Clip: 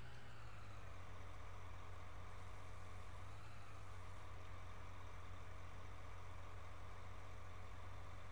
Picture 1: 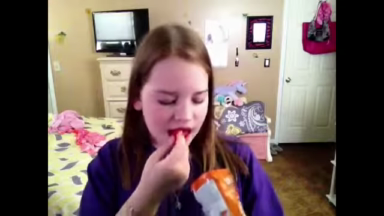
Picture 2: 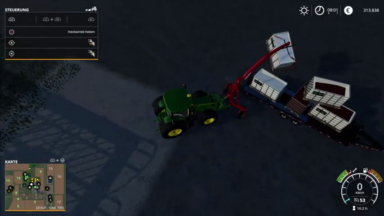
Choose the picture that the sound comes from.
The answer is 2